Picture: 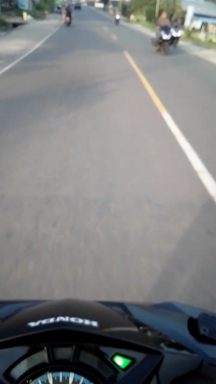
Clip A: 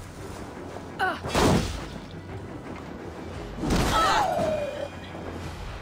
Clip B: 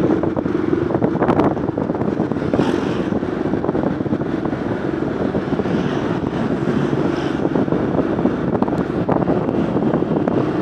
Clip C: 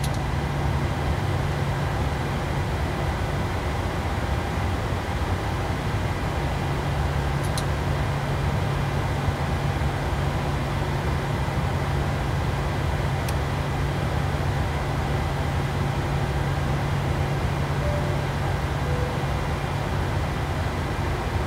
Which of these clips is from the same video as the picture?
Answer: B